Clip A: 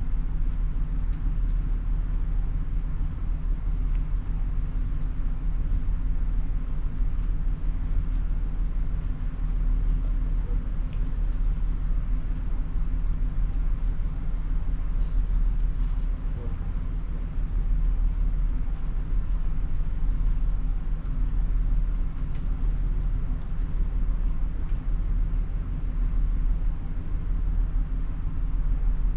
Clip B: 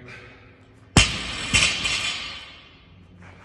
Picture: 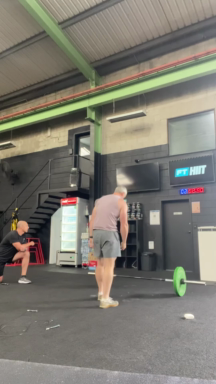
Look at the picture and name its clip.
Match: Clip B